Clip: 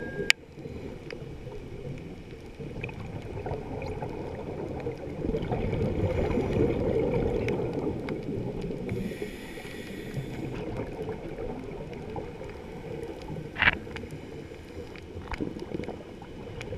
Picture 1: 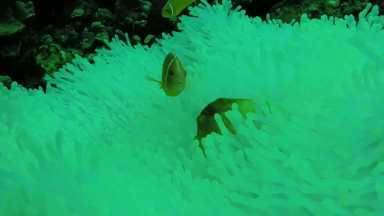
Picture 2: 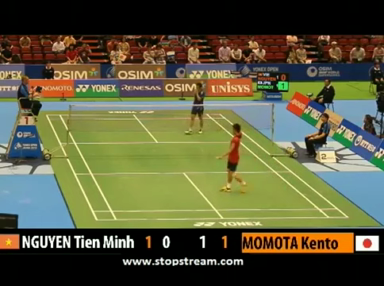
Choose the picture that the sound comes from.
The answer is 1